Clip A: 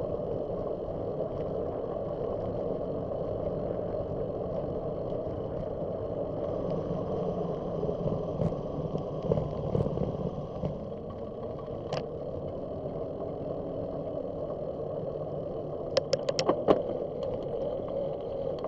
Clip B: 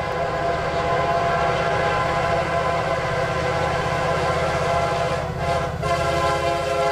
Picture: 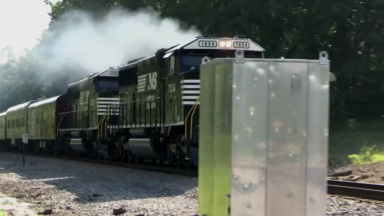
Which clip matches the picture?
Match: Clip B